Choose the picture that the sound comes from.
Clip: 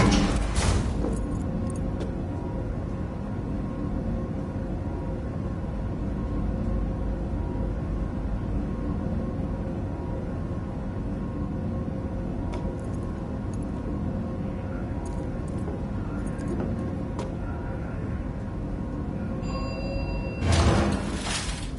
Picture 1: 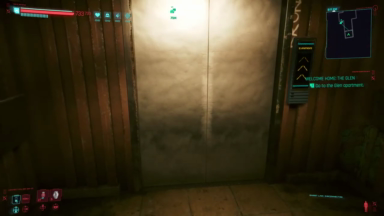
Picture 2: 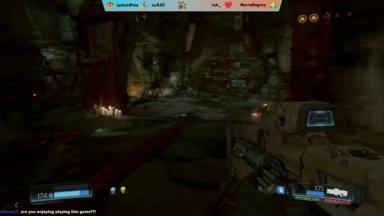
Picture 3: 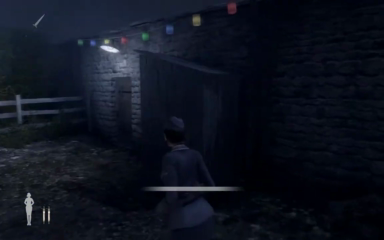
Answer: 1